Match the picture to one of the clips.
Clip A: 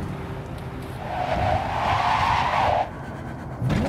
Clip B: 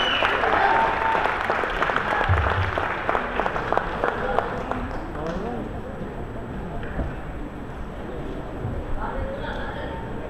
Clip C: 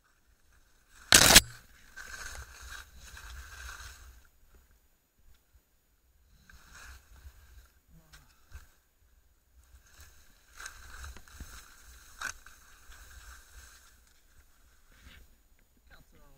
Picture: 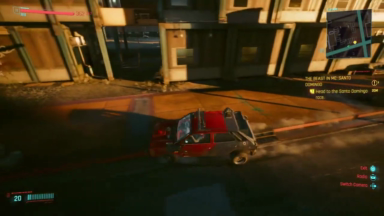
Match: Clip A